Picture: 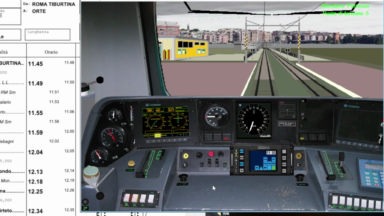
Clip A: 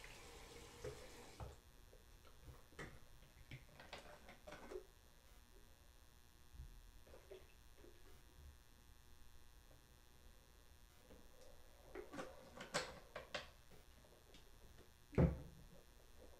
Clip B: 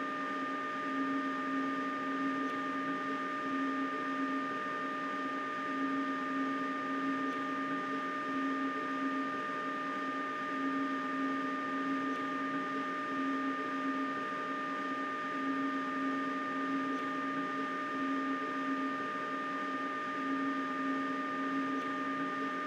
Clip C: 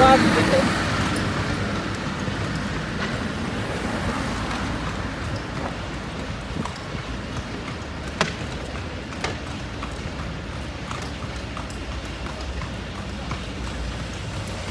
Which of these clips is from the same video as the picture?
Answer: B